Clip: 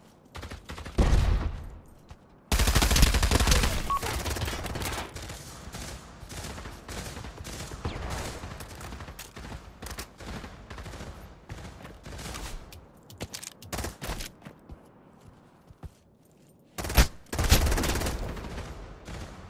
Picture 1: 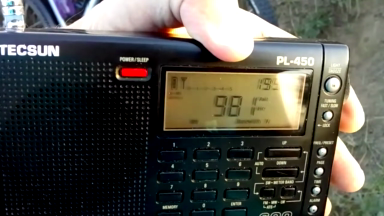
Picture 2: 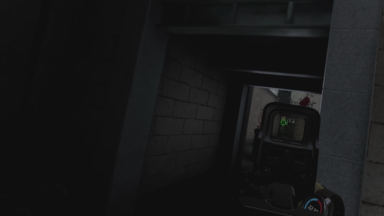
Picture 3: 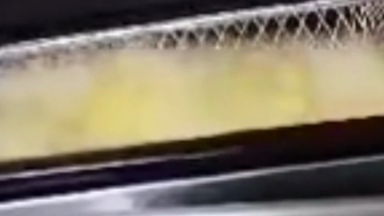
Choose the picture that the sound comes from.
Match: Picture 2